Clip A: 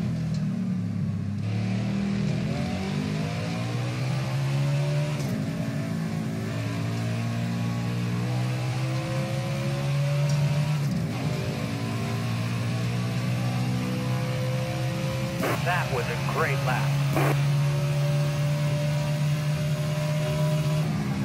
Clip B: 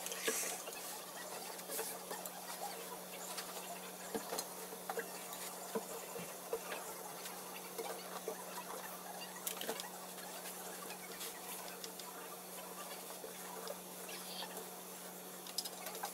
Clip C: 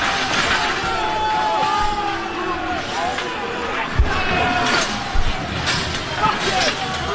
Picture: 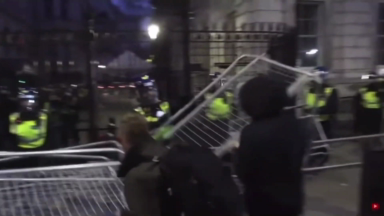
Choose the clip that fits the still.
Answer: C